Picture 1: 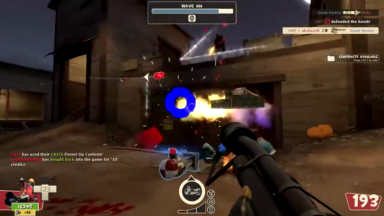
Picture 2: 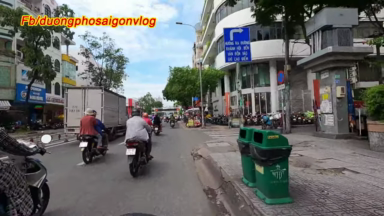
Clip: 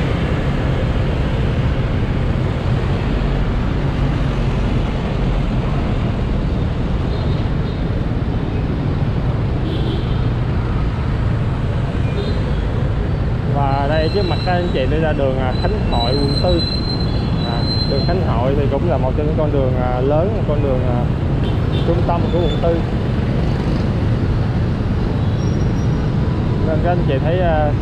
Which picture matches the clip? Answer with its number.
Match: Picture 2